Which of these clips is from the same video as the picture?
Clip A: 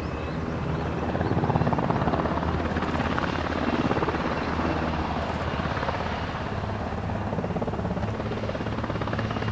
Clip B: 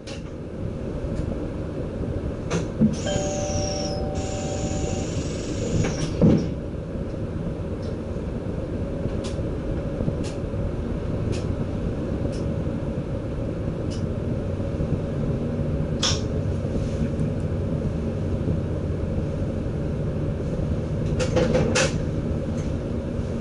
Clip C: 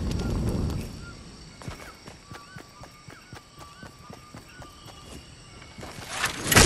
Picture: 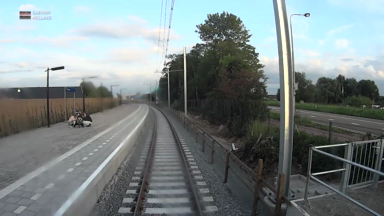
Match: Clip B